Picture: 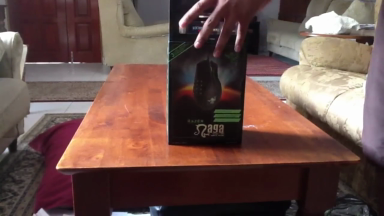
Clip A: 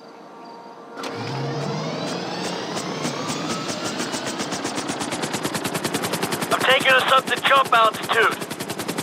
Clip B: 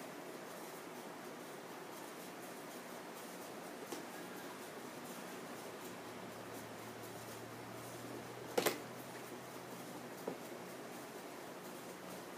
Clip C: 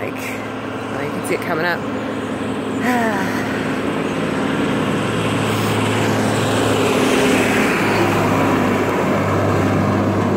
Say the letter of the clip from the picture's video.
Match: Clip B